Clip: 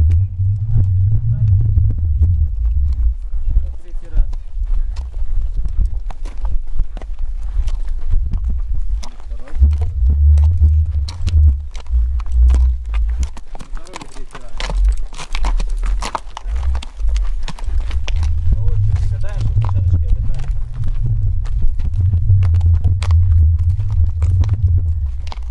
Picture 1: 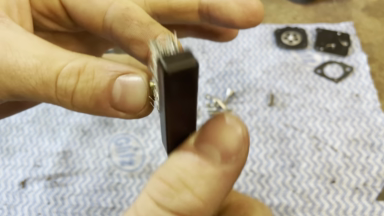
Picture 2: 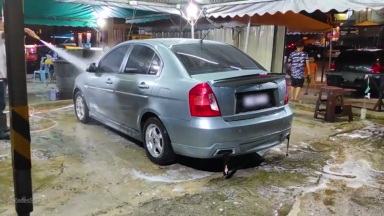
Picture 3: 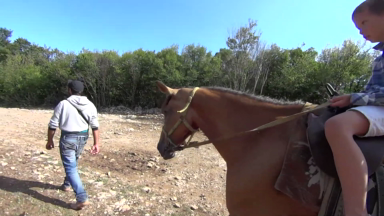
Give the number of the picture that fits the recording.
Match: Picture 3